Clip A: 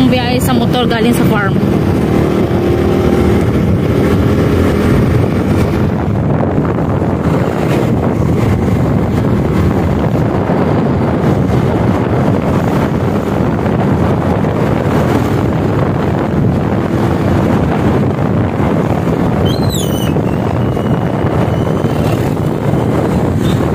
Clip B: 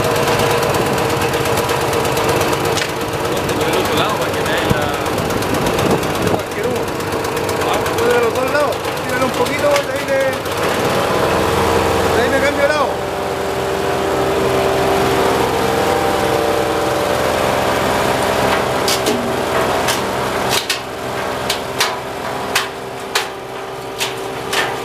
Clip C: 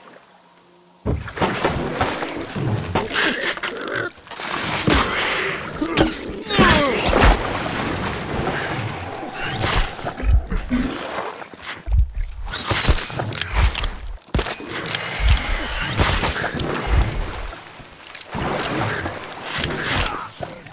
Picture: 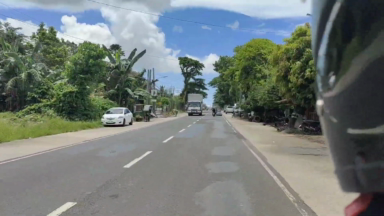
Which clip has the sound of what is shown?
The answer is A